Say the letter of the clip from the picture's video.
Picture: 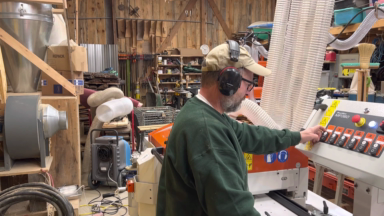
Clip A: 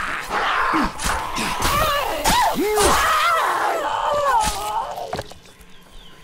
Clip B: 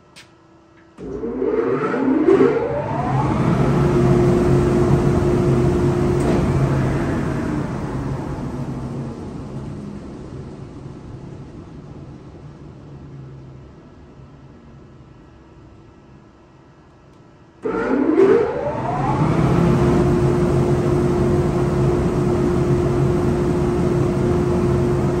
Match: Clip B